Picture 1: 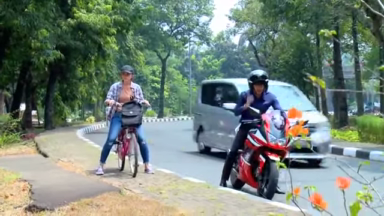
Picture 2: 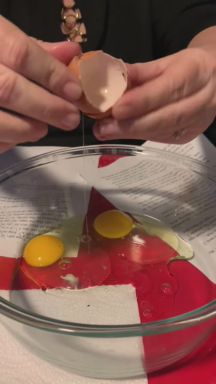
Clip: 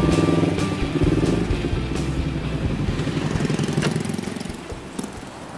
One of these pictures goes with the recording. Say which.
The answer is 1